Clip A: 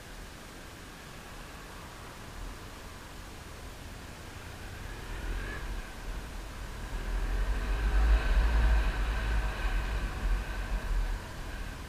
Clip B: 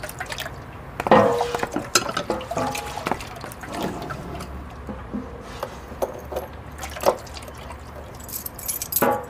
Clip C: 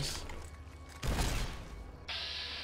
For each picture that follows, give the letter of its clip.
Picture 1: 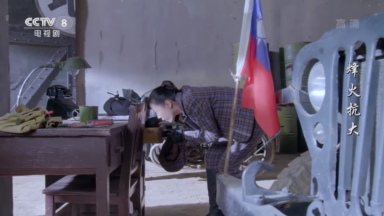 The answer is B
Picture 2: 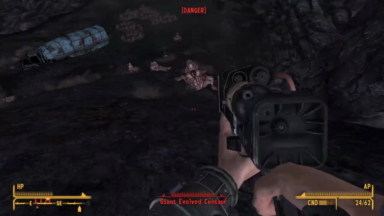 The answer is C